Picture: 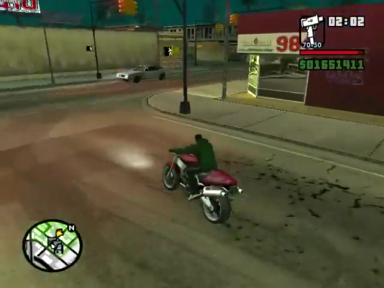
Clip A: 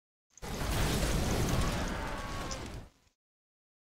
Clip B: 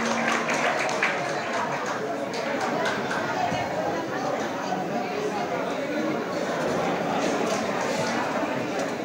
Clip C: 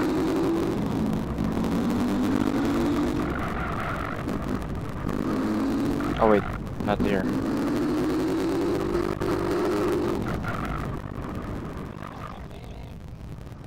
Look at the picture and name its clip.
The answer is C